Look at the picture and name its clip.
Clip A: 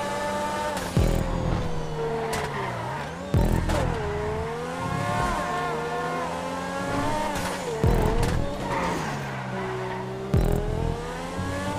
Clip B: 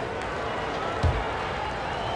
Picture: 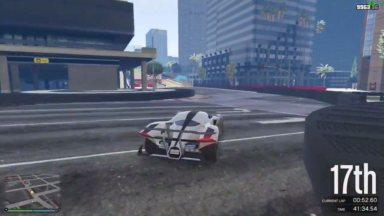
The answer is A